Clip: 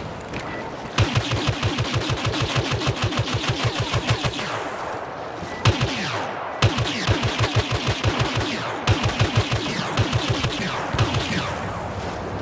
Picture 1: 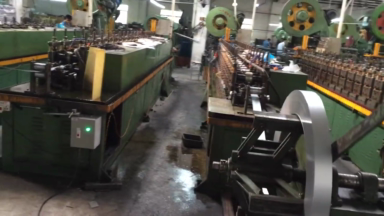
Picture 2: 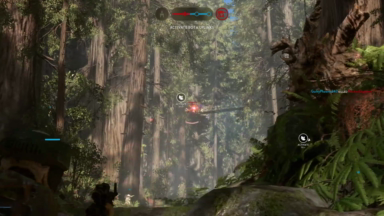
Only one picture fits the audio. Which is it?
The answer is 2